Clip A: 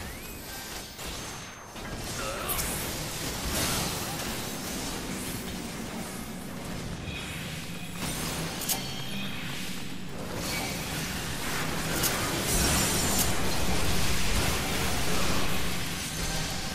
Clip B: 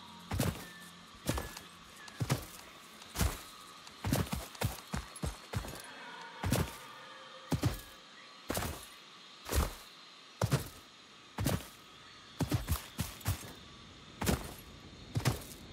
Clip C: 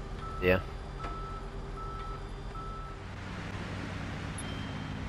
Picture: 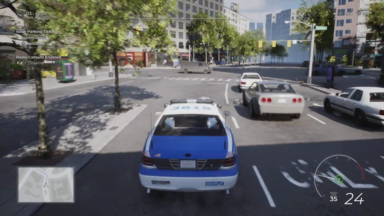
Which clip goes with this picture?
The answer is C